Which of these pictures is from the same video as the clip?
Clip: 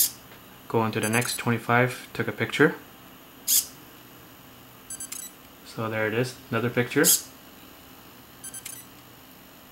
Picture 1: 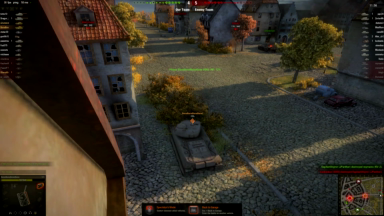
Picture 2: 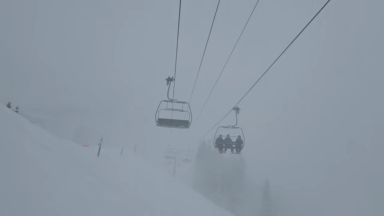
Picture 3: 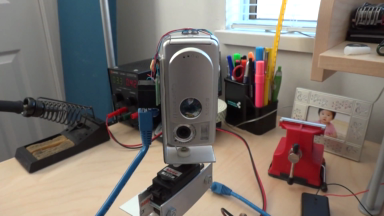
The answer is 3